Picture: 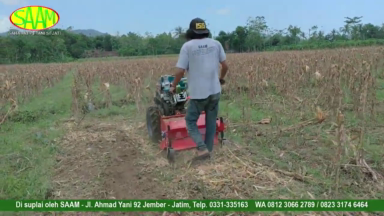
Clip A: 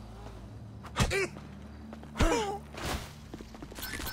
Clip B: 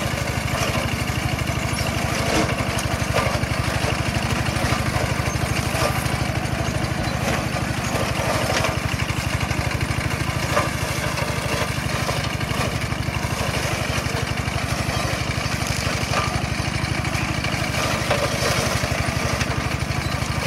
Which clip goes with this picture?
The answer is B